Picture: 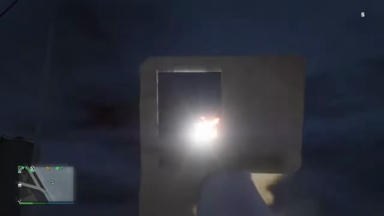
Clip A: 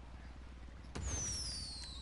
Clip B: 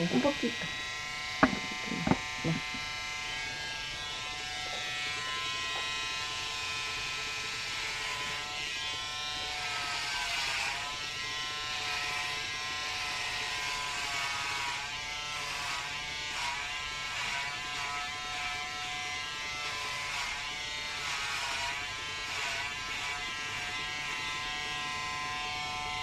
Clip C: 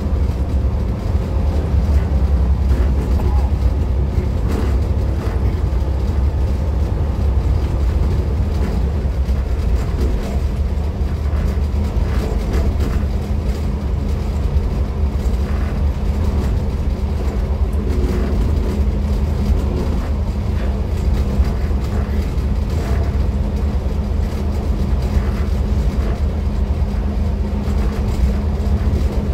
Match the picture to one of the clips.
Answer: A